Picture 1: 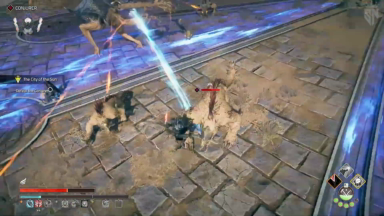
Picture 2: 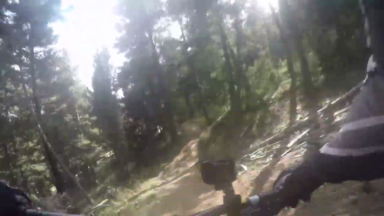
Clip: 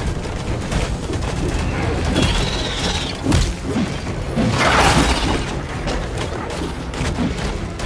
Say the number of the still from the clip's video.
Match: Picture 1